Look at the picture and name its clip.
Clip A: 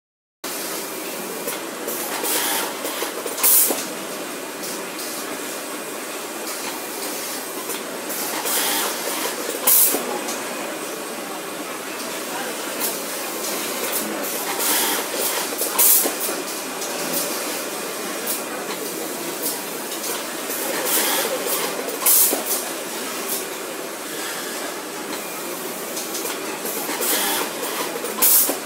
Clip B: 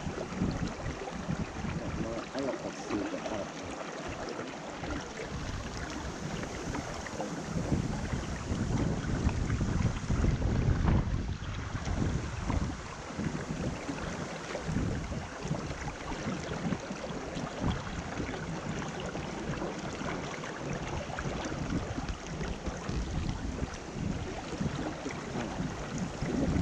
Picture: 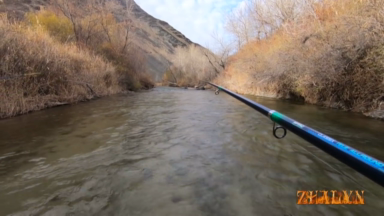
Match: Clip B